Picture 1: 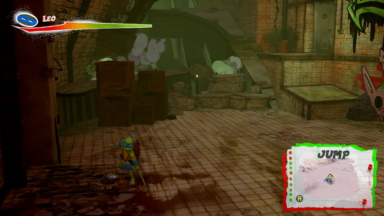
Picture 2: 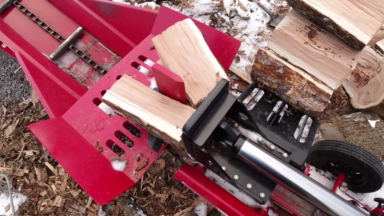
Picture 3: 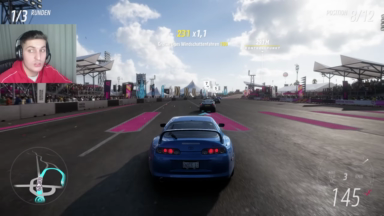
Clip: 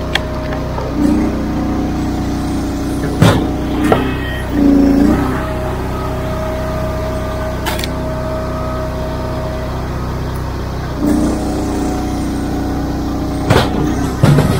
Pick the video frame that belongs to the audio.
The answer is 2